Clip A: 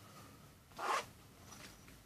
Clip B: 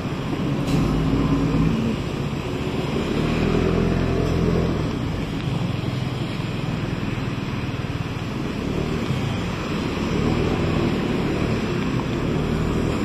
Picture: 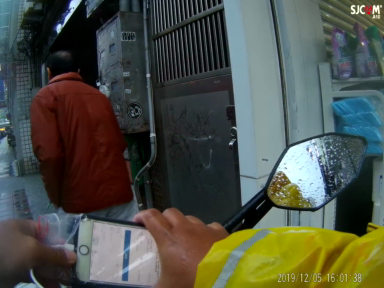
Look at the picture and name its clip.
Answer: B